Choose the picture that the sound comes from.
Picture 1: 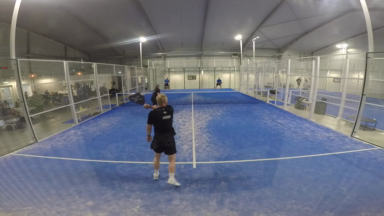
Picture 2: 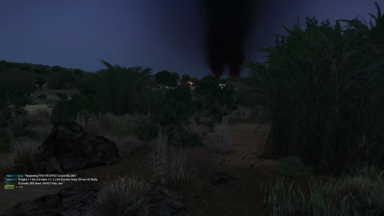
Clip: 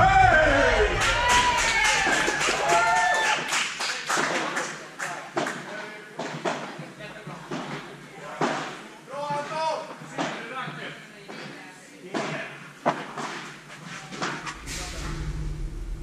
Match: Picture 1